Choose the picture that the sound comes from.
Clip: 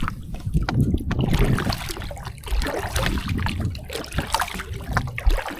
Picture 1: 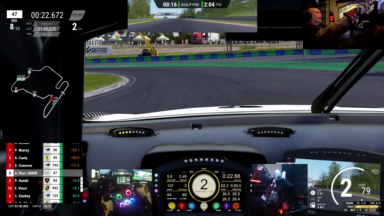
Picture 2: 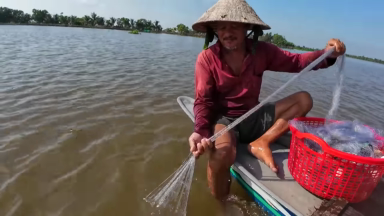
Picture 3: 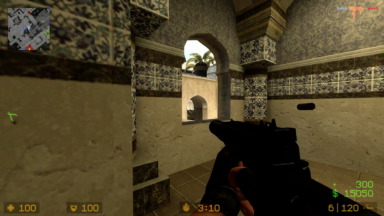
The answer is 2